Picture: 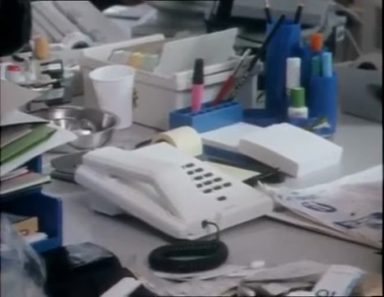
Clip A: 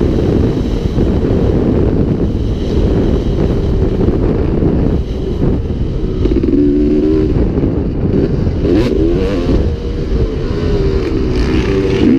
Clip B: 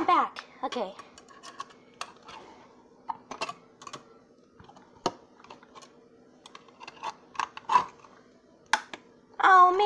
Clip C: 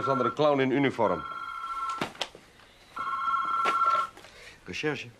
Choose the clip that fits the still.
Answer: C